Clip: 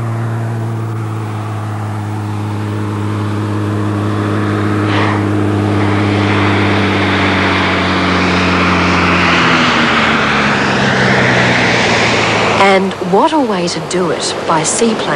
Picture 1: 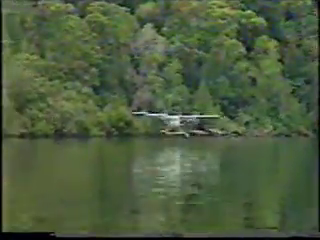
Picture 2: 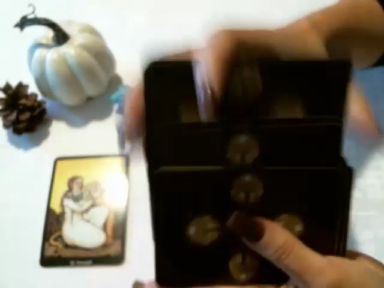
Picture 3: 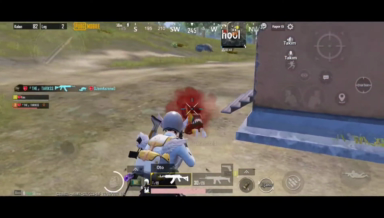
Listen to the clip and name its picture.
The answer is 1